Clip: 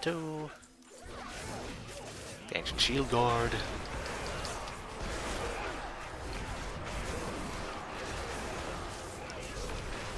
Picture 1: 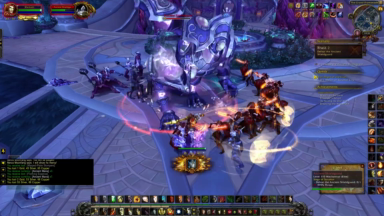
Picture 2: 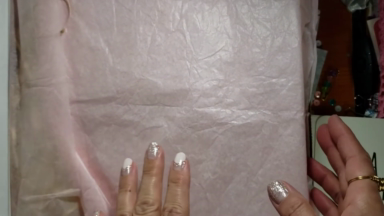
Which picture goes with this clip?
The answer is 1